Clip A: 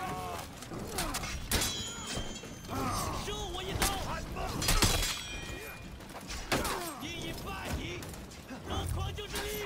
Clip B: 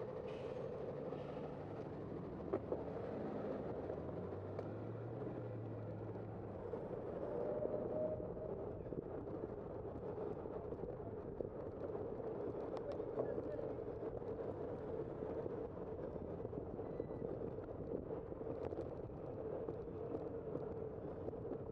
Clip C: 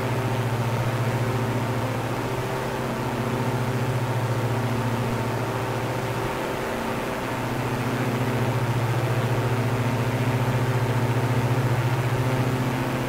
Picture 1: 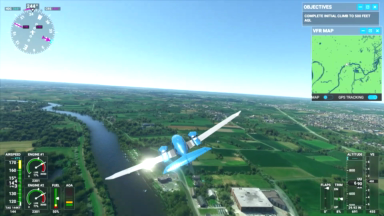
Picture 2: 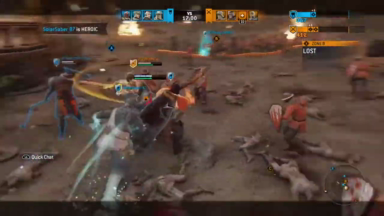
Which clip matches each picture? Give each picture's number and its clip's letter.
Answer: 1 C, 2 A